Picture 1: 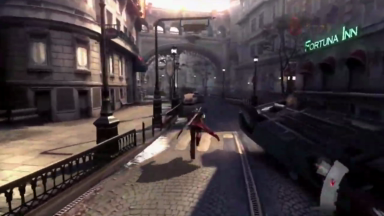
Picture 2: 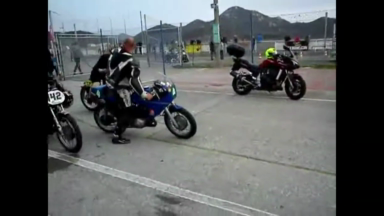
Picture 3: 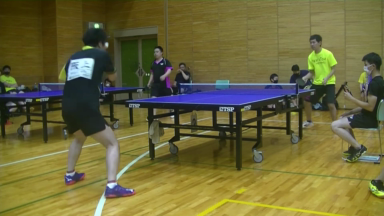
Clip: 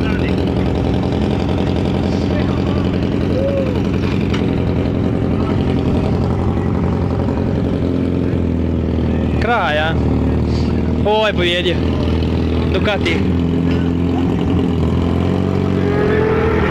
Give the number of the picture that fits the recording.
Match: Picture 2